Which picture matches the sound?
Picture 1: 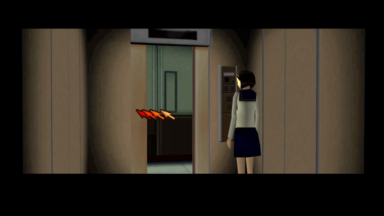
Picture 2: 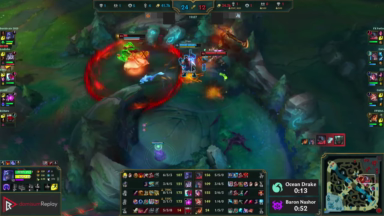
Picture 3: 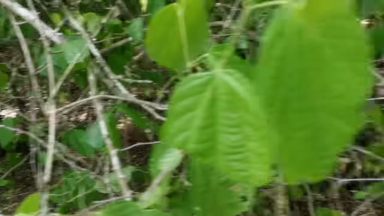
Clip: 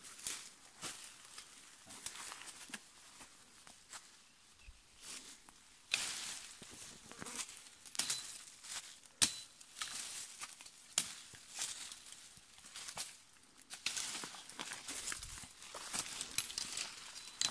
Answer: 3